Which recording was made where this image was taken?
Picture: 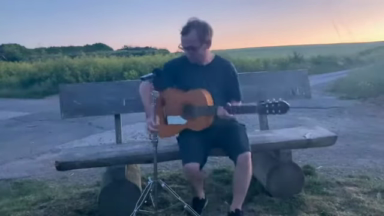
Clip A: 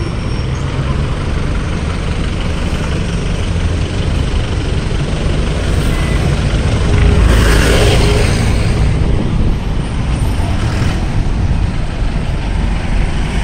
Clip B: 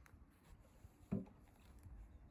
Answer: B